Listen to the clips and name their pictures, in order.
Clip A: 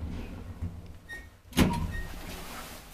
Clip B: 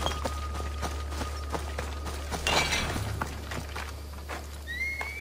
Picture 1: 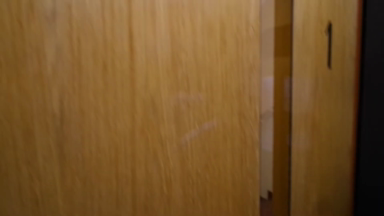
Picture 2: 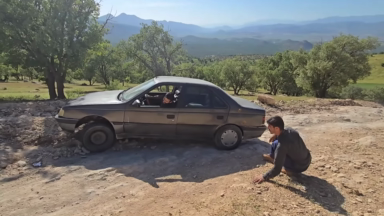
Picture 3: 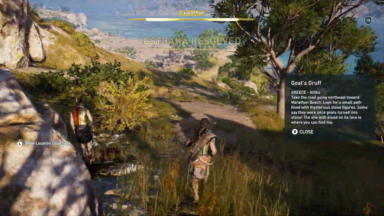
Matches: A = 1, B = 3